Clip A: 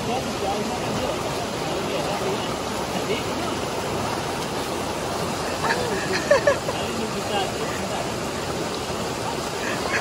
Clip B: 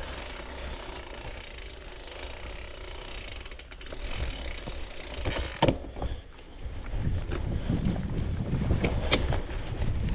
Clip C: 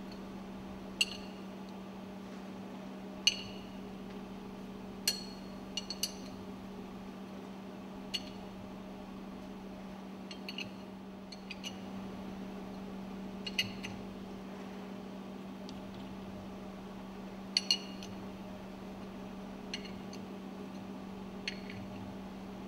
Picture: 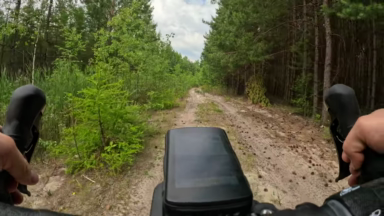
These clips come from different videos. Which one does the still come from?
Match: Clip B